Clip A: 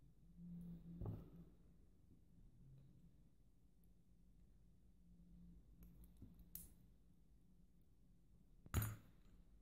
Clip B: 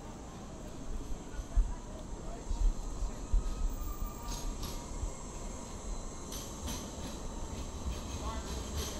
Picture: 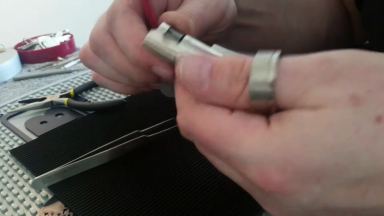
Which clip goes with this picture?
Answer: A